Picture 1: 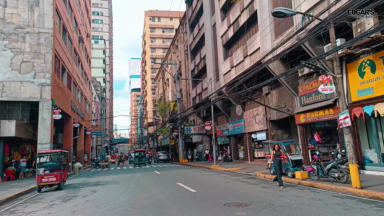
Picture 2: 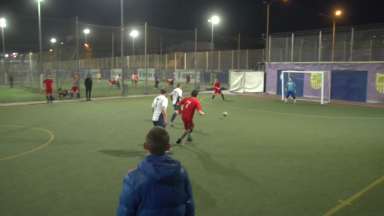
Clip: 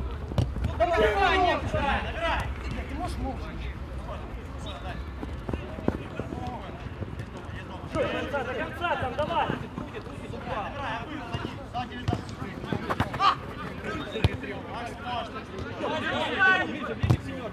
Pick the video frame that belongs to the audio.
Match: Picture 2